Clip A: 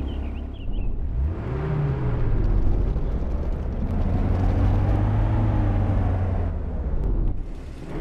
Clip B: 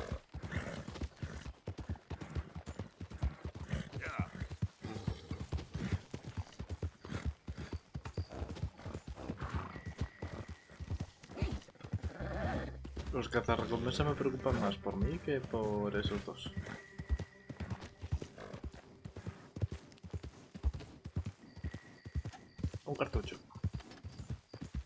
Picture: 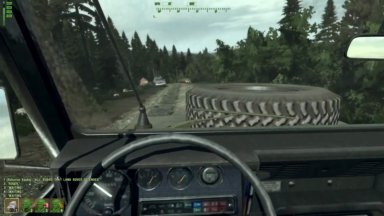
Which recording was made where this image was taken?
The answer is A